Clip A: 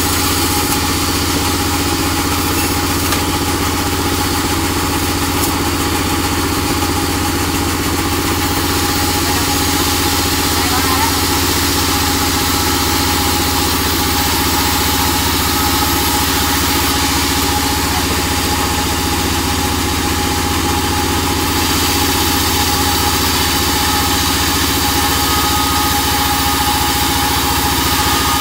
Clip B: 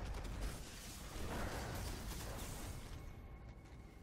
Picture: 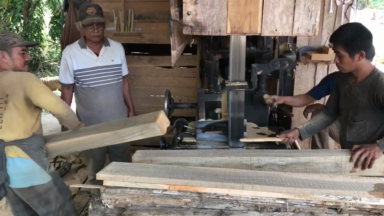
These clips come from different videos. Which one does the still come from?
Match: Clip A